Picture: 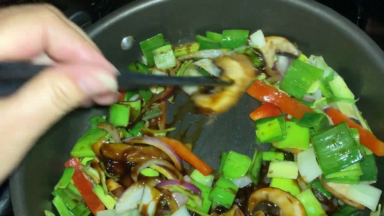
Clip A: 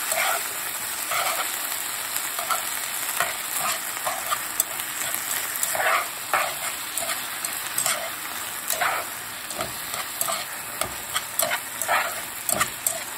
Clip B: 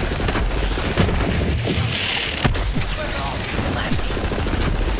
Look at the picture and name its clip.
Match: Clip A